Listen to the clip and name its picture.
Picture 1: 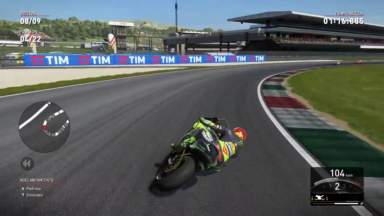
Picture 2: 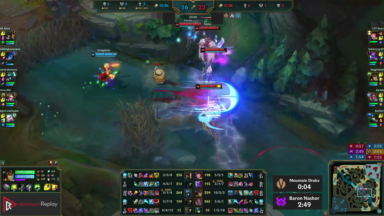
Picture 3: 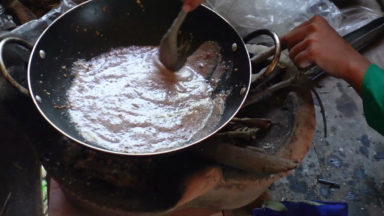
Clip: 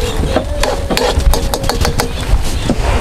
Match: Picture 3